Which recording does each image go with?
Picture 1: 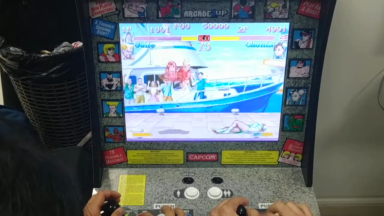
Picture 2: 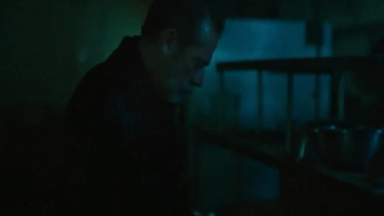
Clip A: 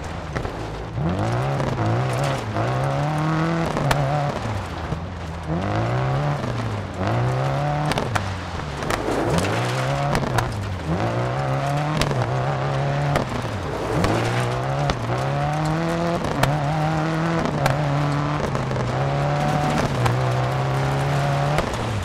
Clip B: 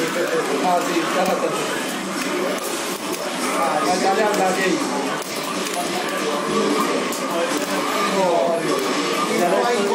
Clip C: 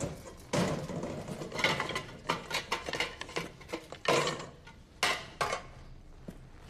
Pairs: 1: B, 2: C